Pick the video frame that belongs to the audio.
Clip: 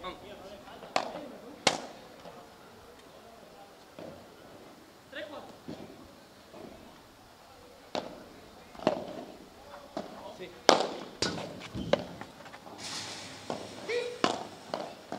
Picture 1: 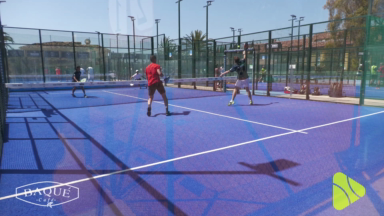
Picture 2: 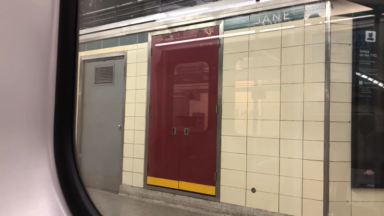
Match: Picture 1